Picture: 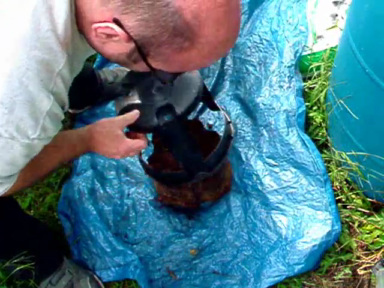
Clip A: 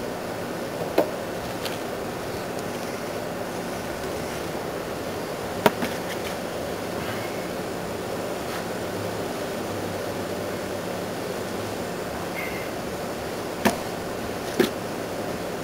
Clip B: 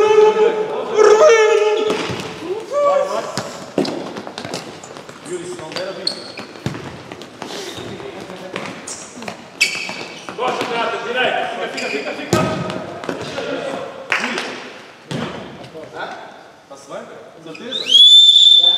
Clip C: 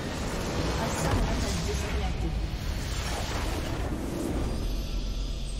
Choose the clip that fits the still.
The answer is A